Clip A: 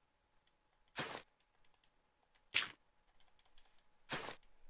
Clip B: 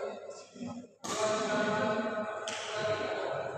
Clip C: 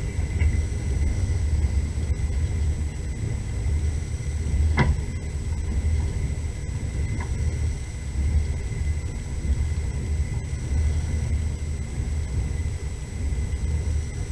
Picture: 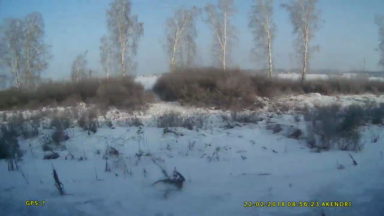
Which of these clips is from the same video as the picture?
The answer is C